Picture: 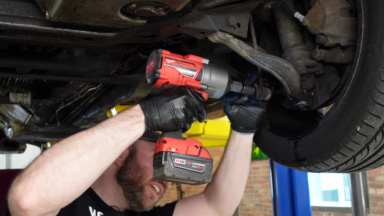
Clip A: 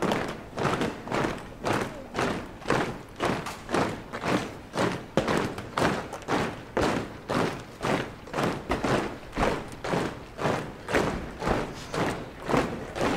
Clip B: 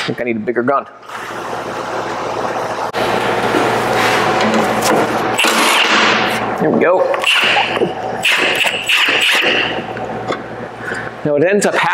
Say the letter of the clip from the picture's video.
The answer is B